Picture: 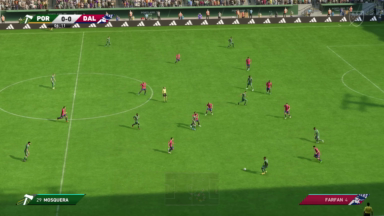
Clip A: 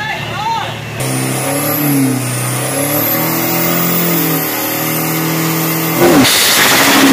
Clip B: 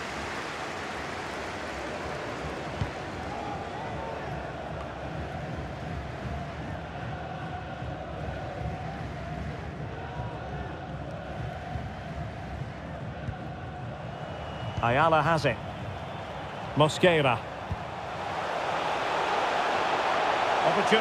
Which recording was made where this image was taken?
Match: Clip B